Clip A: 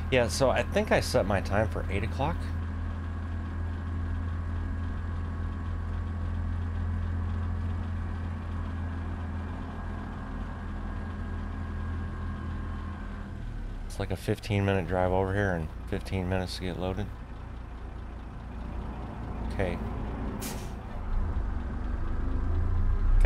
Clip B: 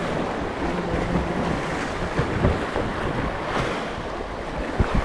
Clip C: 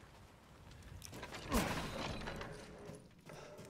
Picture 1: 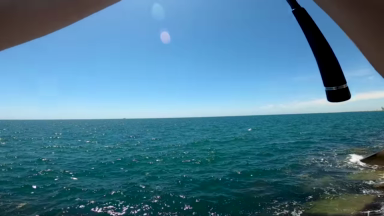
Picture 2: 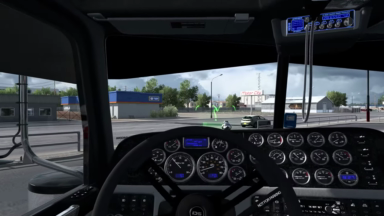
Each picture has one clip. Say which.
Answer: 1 B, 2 A